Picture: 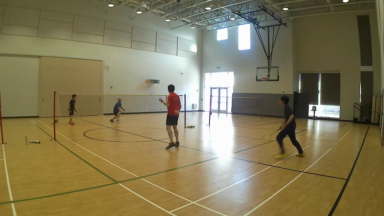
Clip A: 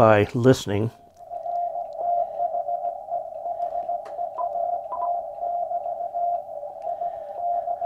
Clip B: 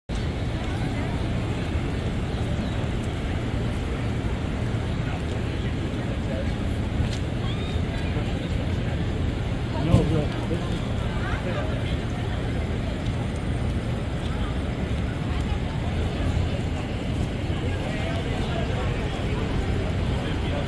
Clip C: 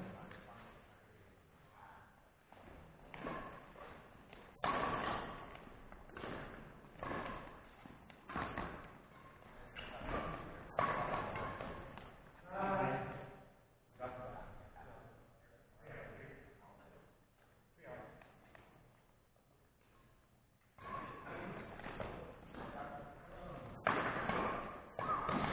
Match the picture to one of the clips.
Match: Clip C